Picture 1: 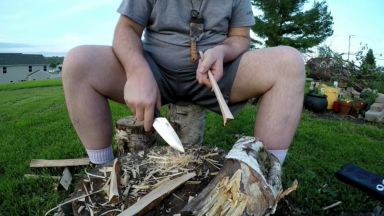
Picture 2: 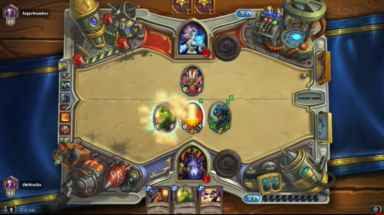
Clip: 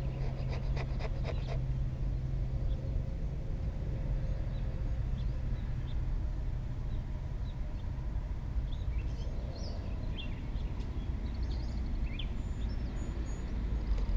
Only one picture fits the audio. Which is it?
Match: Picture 1